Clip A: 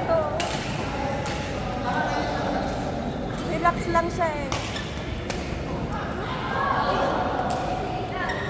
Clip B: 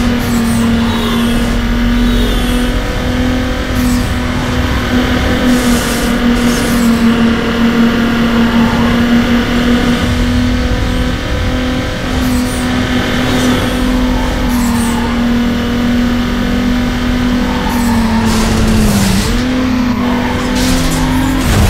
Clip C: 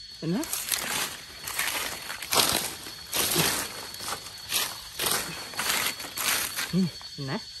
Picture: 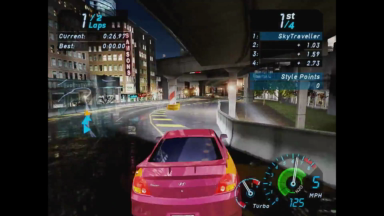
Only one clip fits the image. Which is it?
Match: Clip B